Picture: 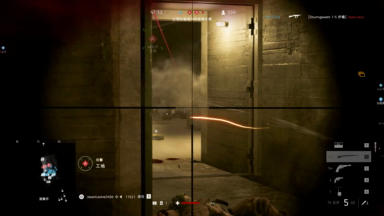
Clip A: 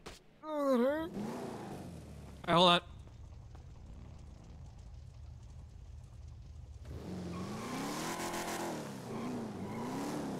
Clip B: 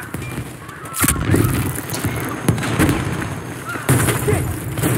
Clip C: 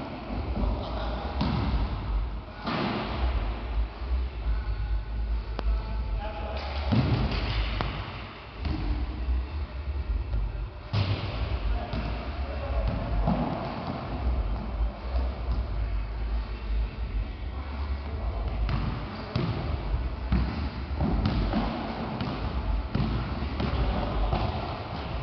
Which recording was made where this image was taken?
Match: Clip B